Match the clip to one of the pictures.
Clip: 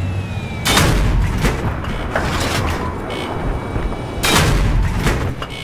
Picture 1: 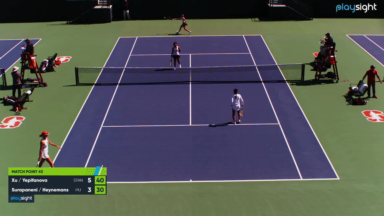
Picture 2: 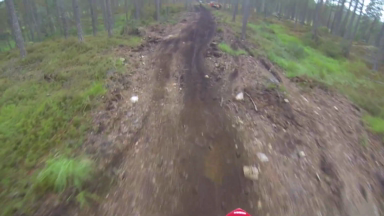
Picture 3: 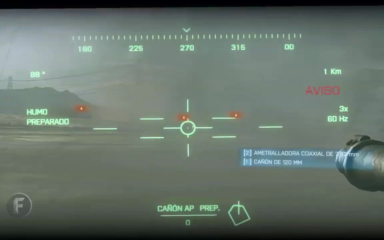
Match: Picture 3